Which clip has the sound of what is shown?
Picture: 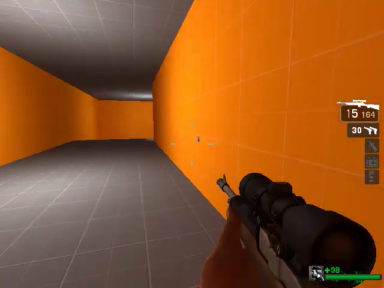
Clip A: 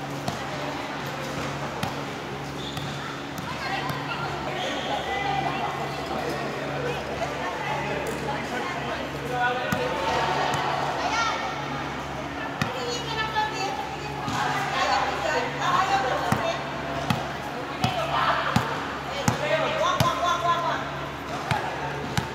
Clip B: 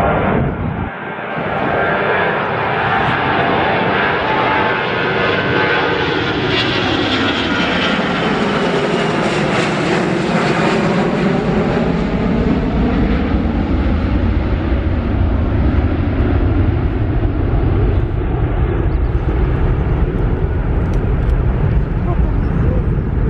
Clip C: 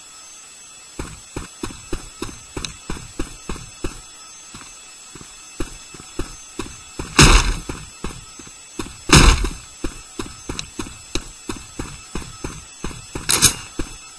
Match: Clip C